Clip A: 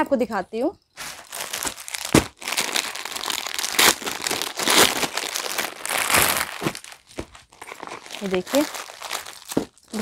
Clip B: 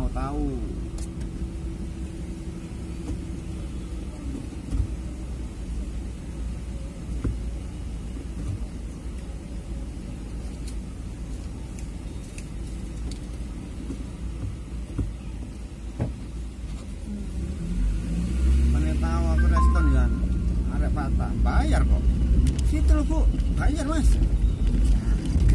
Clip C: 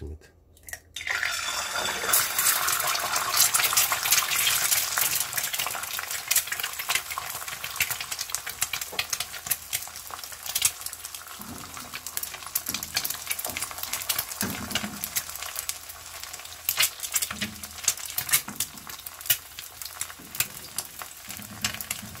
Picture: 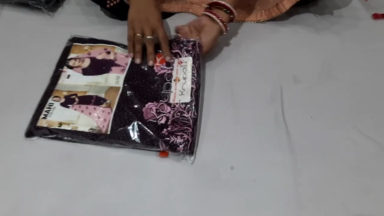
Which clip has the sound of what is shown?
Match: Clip A